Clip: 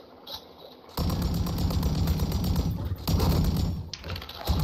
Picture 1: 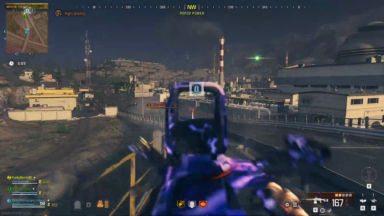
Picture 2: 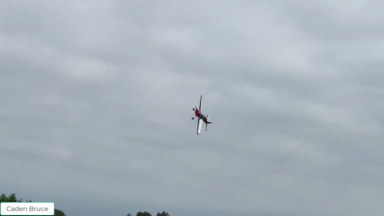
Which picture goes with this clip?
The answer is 1